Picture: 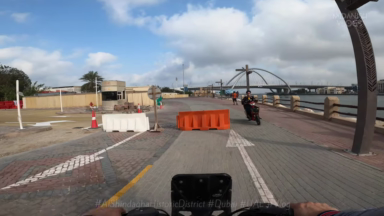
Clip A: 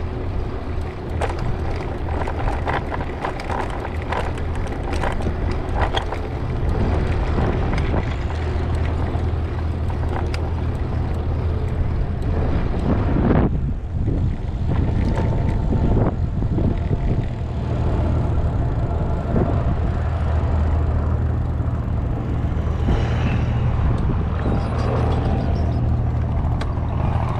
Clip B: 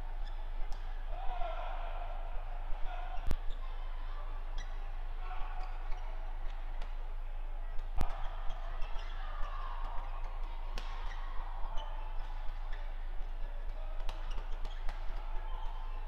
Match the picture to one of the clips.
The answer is A